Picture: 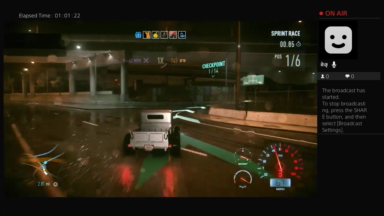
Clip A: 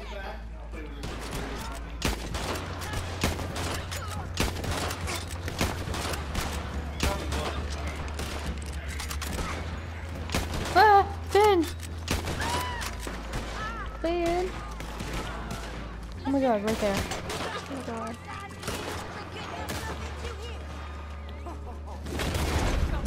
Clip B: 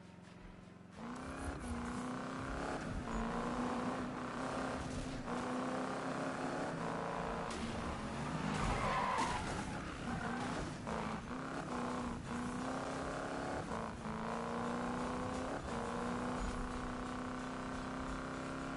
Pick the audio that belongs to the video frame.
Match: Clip B